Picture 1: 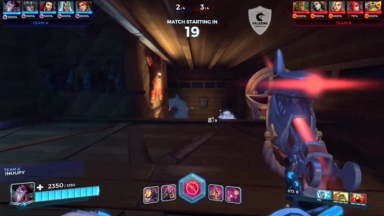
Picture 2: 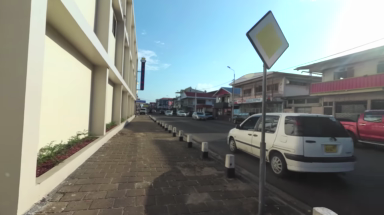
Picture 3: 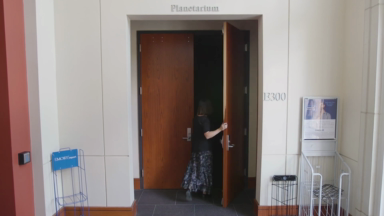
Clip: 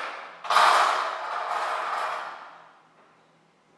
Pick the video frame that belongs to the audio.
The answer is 3